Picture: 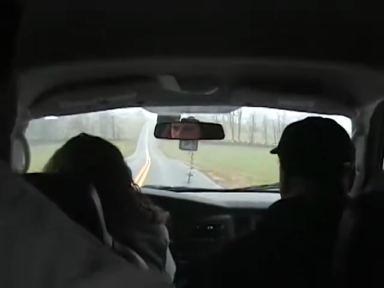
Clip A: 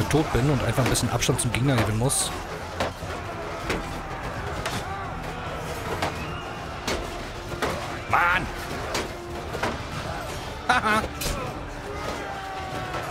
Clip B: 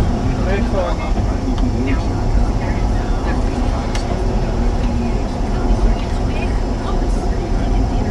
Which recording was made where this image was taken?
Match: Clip B